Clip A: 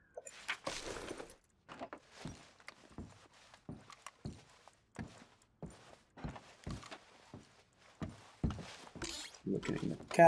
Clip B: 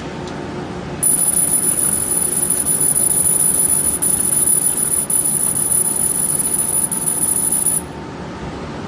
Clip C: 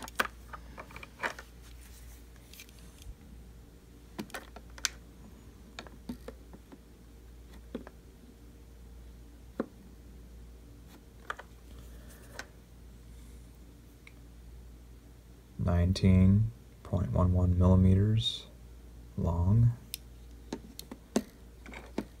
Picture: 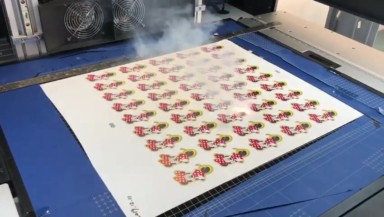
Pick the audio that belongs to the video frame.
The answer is B